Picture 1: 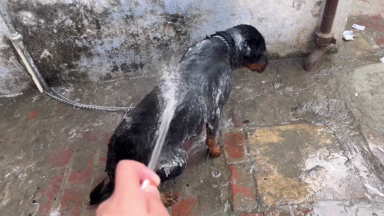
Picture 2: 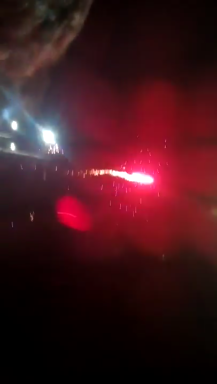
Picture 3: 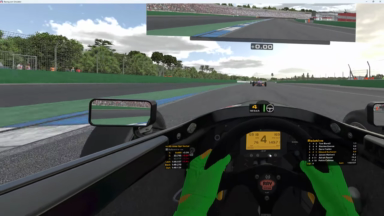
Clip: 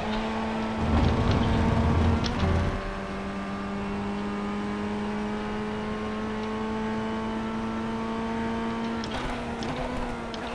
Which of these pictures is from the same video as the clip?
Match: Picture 3